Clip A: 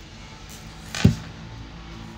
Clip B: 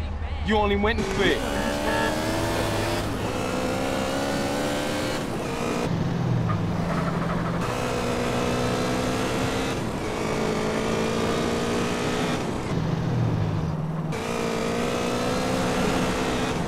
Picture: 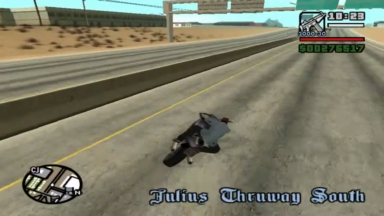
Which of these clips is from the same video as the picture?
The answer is B